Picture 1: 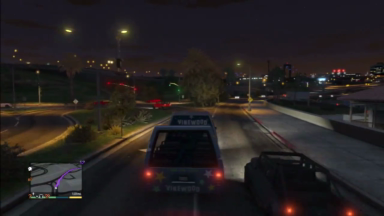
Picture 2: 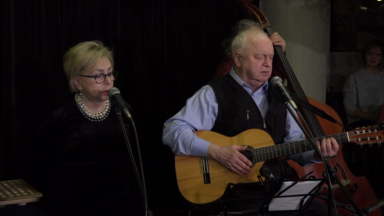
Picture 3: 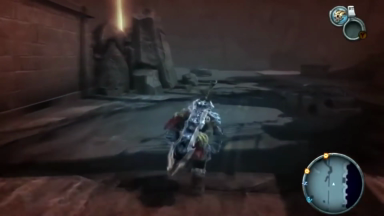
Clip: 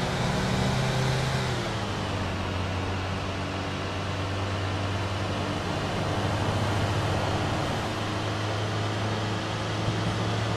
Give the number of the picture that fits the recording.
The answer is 1